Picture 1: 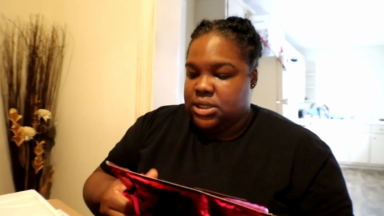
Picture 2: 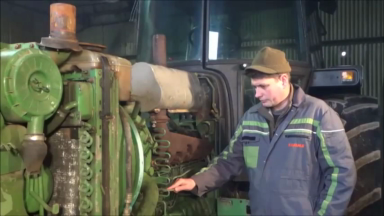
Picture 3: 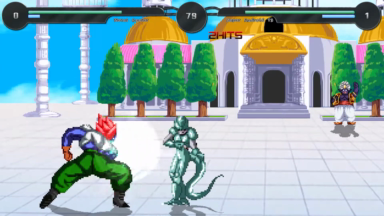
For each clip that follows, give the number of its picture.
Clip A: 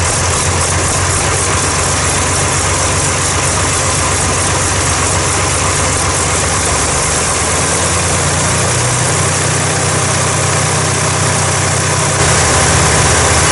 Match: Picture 2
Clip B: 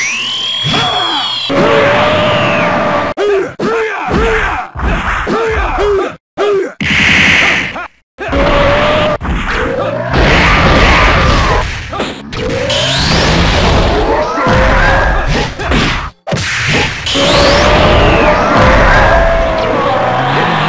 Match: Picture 3